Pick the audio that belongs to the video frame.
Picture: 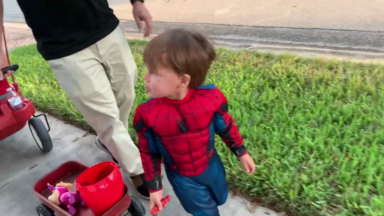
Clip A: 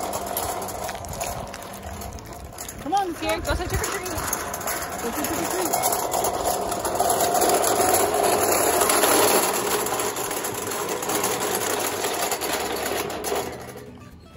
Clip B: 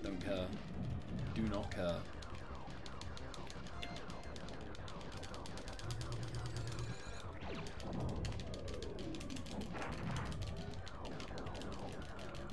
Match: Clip A